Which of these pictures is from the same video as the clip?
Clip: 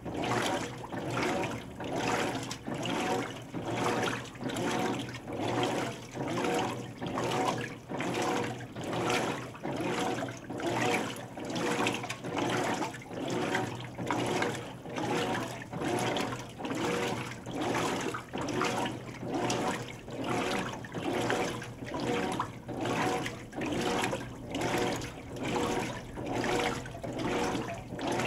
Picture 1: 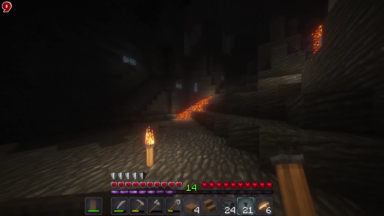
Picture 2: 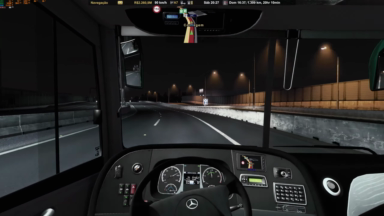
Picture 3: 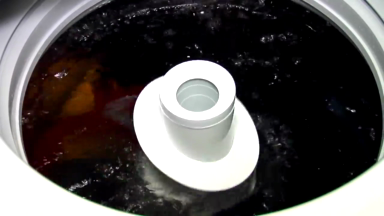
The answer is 3